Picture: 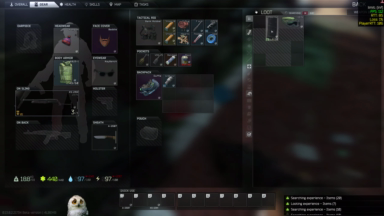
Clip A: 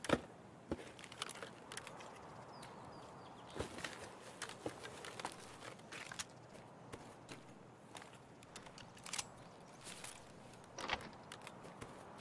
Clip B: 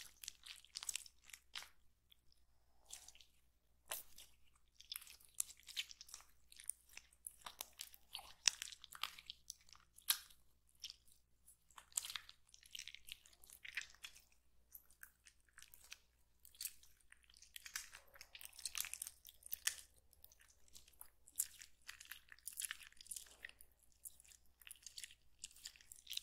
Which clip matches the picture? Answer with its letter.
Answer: A